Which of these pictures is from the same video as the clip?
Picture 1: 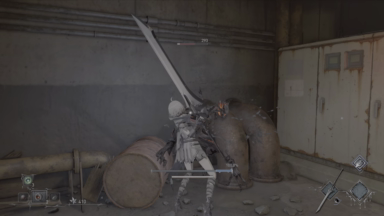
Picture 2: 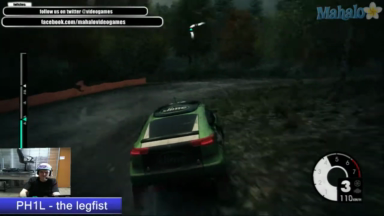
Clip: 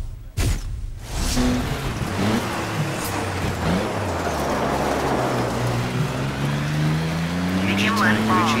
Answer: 2